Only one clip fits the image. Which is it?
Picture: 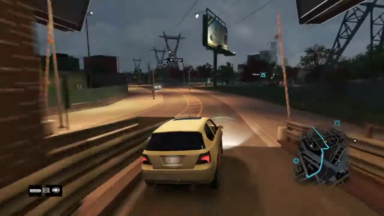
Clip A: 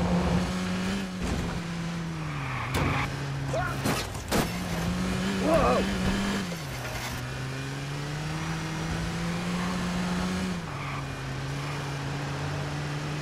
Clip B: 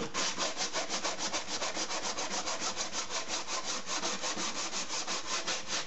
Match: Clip A